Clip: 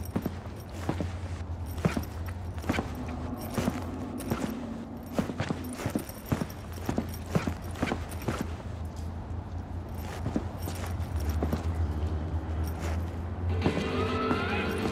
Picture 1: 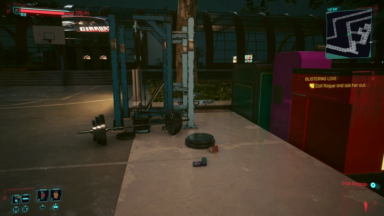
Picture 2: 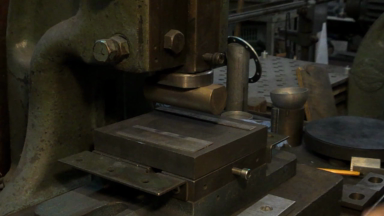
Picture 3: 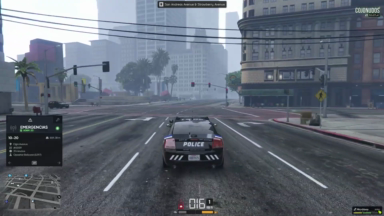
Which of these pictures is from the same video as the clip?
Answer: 1